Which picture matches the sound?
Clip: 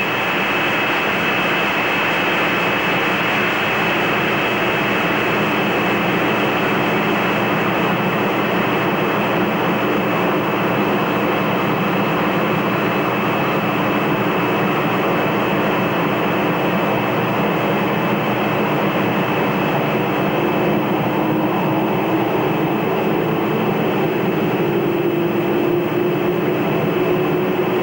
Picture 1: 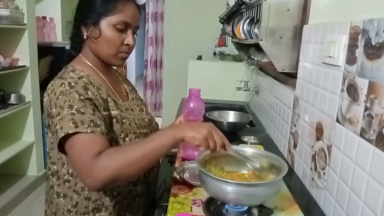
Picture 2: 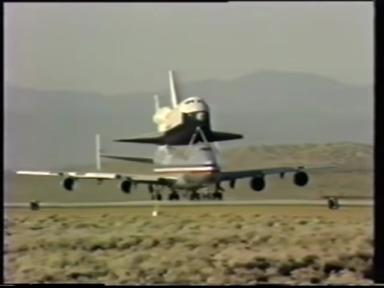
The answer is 2